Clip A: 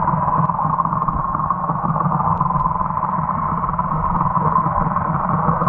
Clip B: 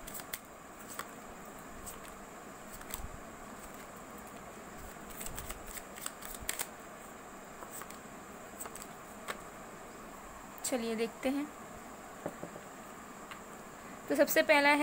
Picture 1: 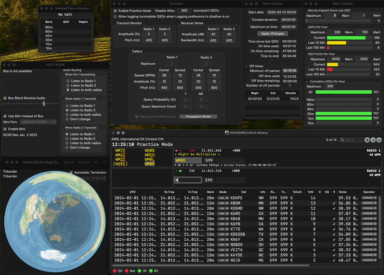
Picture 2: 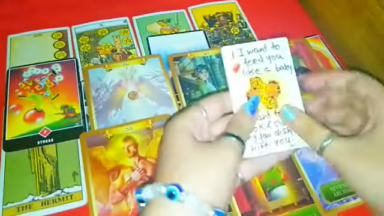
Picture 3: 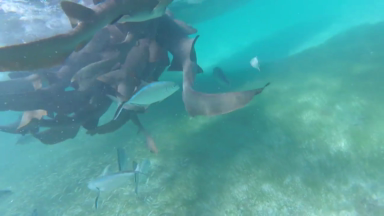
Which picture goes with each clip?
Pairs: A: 3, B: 2